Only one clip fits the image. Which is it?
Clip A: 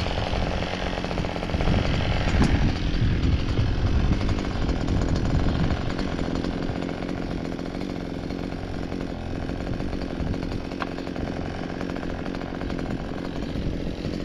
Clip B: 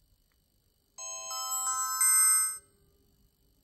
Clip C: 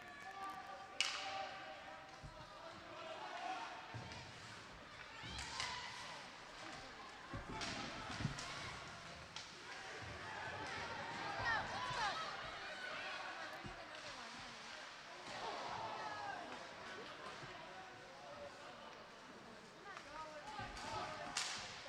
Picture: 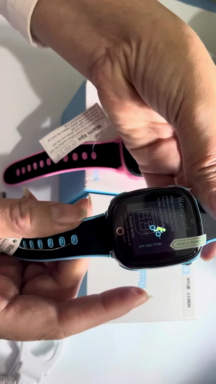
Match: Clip B